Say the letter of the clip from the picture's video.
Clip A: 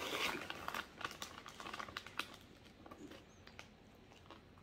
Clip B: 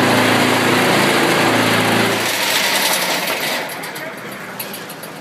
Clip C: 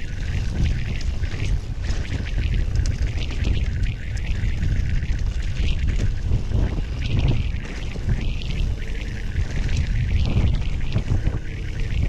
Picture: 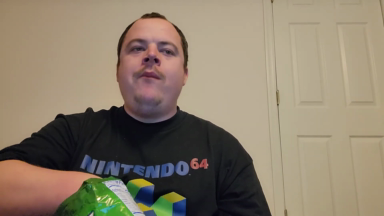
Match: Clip A